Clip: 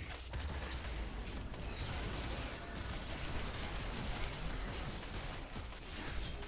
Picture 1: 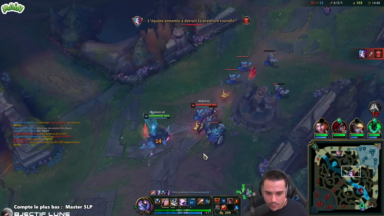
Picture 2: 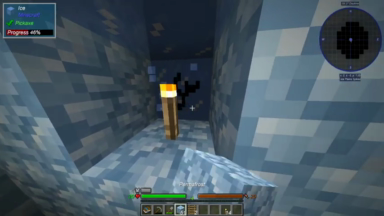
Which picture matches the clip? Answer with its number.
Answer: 1